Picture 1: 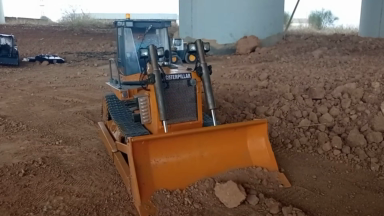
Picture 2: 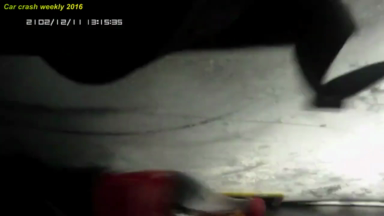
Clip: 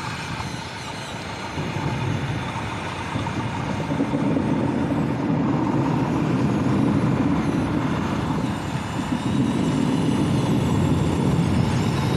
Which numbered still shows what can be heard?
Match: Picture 1